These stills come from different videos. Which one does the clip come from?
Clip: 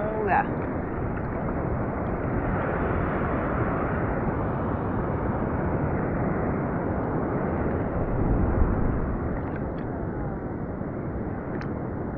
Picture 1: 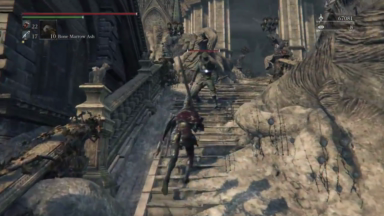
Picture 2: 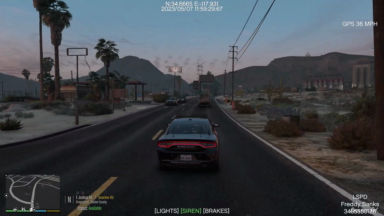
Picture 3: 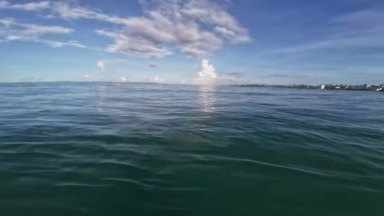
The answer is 3